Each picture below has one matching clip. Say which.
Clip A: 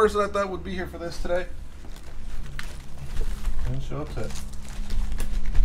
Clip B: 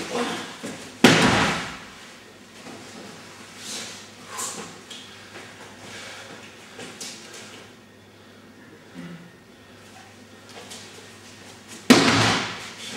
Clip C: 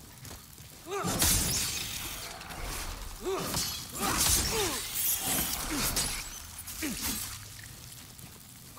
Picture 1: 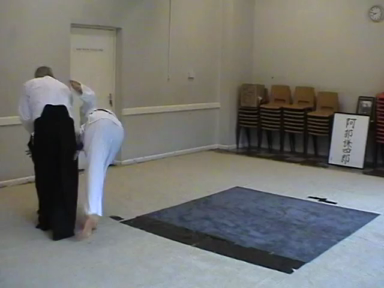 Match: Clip B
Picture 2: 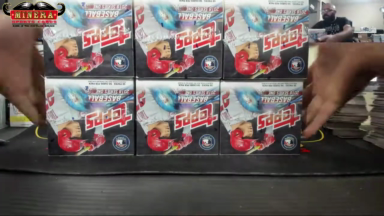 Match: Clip A